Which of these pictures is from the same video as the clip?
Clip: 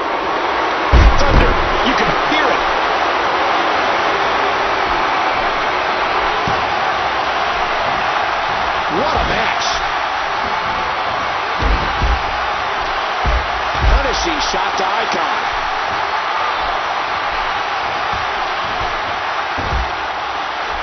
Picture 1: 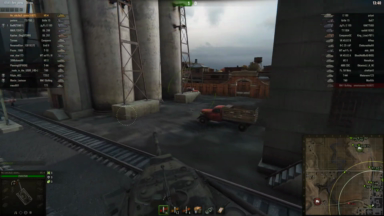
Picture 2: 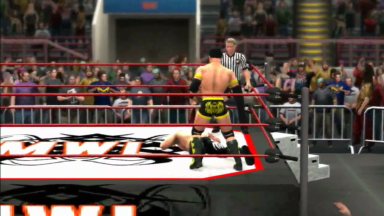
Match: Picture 2